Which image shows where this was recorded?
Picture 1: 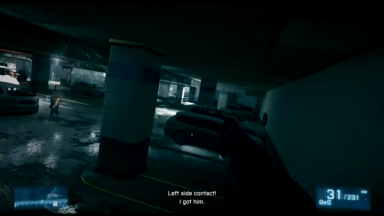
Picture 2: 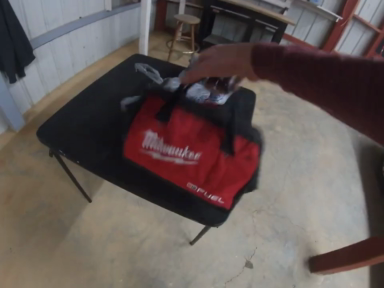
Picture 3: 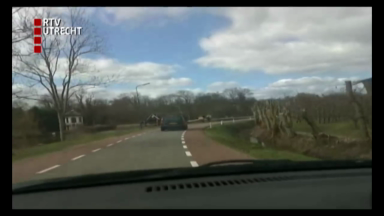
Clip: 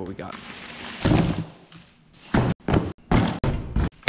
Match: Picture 2